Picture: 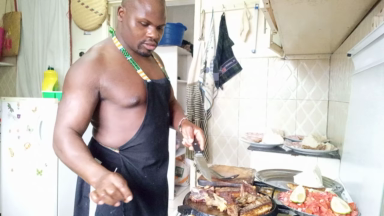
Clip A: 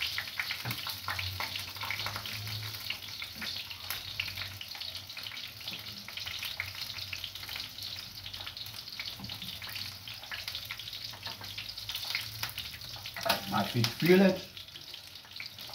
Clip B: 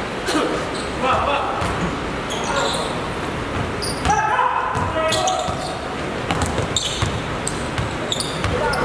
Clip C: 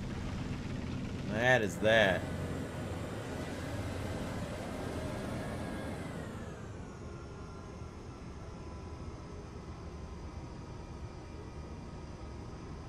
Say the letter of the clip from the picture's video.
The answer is A